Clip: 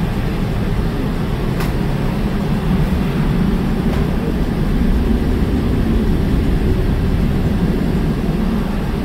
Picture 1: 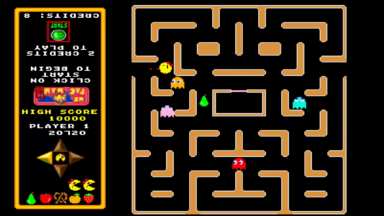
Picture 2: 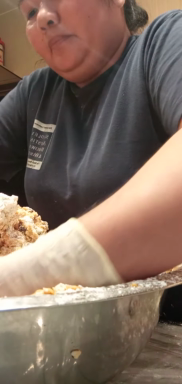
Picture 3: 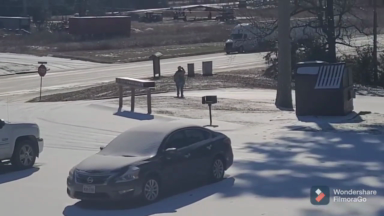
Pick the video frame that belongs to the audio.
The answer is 3